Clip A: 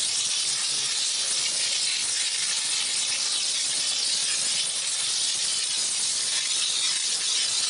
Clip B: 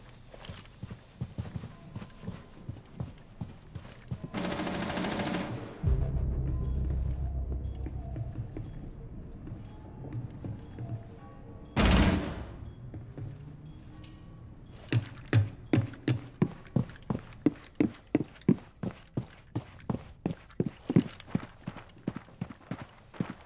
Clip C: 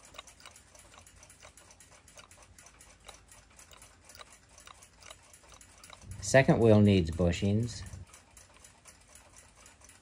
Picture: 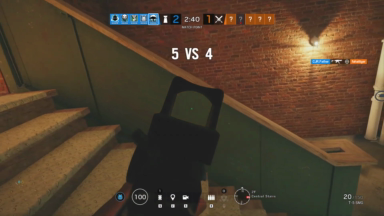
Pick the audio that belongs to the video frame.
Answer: B